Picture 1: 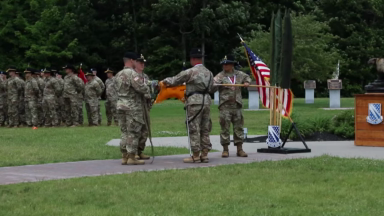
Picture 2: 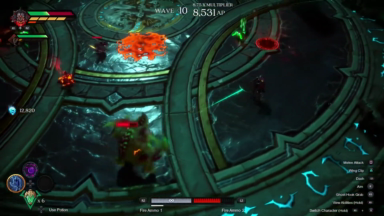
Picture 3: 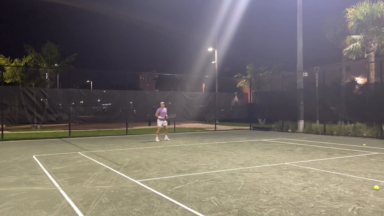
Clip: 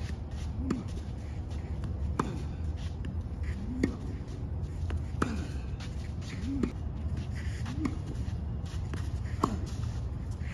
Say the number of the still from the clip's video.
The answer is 3